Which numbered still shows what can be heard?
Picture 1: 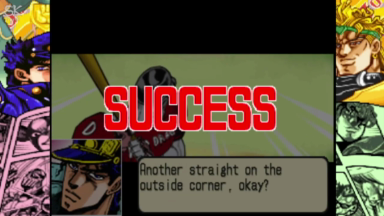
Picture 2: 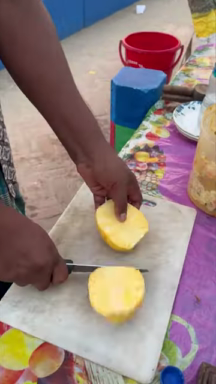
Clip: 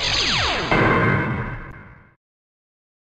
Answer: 1